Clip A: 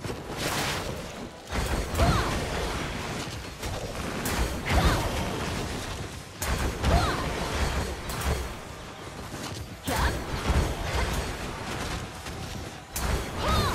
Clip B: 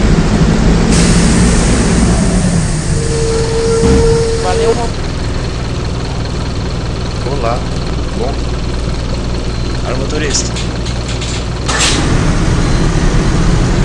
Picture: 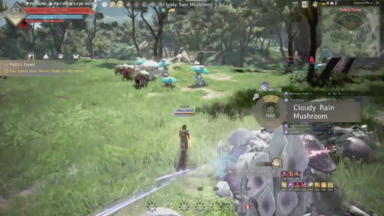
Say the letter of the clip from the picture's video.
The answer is A